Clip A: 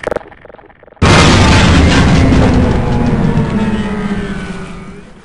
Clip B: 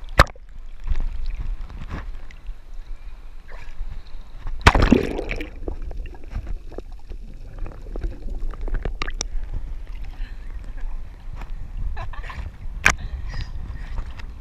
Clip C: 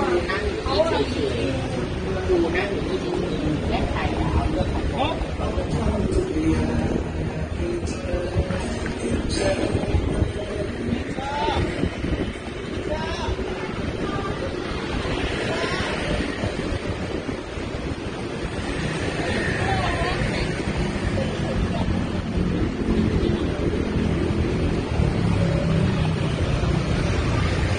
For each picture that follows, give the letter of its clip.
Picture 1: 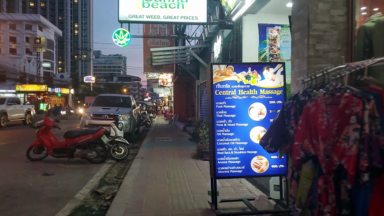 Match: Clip C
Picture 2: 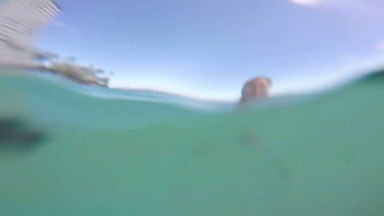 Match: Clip B